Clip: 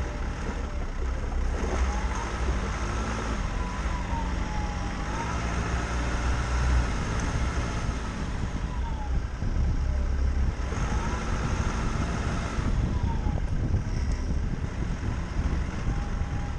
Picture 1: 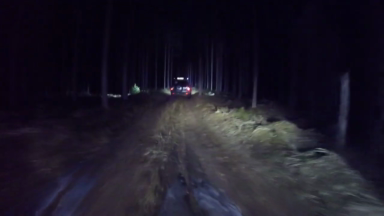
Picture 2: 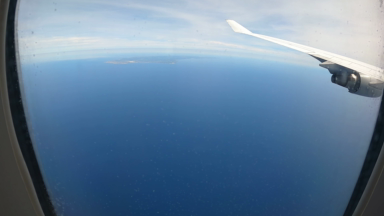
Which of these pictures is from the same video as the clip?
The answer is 1